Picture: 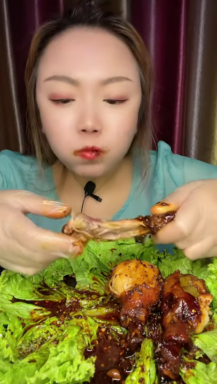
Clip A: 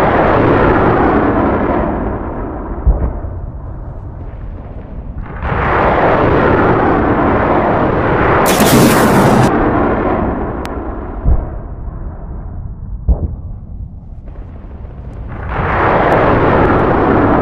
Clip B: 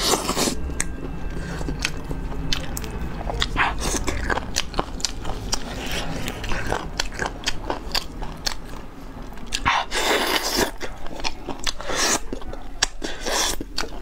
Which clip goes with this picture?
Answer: B